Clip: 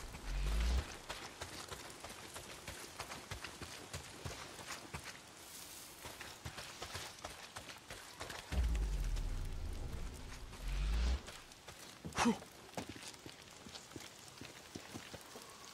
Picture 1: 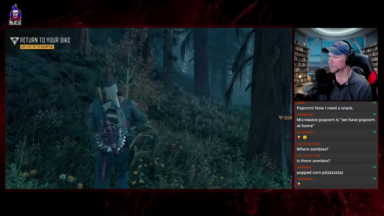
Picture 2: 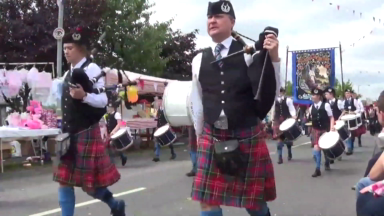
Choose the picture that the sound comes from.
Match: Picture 1